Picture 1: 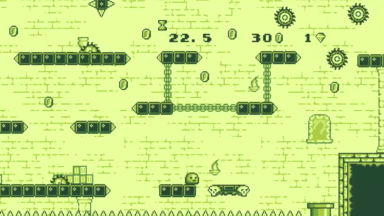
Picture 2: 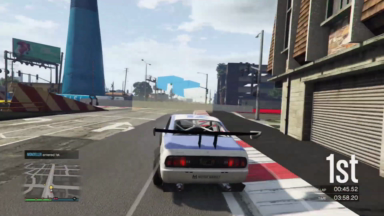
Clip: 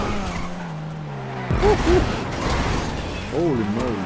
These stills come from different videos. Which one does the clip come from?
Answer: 2